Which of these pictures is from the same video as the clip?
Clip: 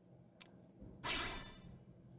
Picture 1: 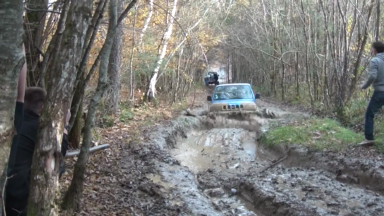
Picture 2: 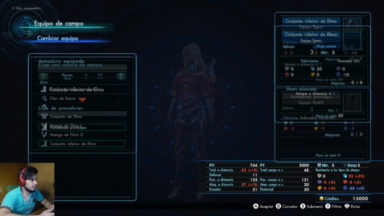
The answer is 2